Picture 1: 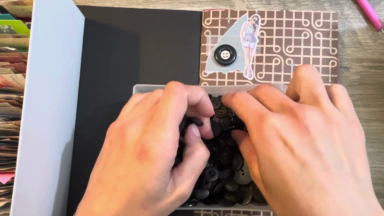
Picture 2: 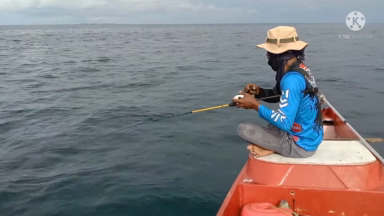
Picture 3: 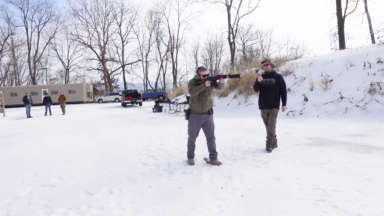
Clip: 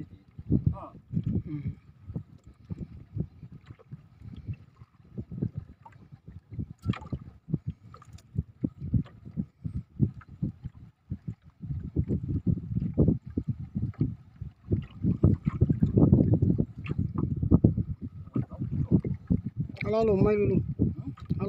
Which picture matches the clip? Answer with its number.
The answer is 2